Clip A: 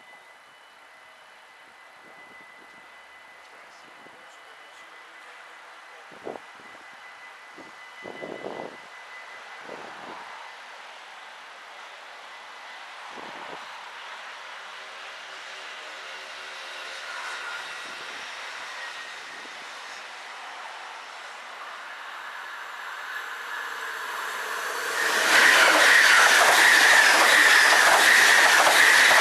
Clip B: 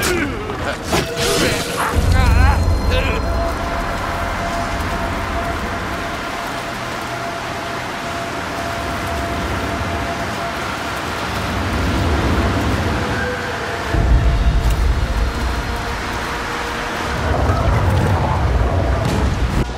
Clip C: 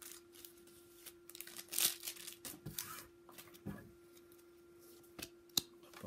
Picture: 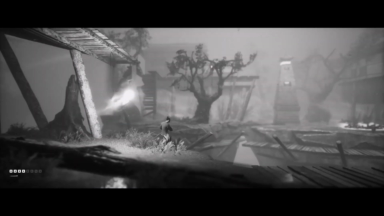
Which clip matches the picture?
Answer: B